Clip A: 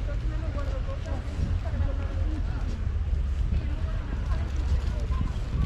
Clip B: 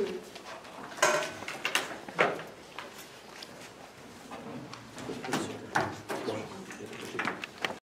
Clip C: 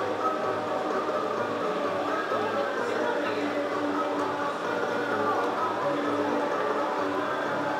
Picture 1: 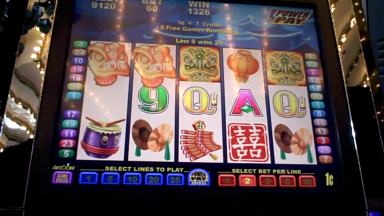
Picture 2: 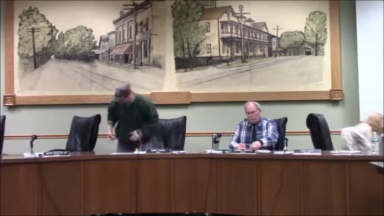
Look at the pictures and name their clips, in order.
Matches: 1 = C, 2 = B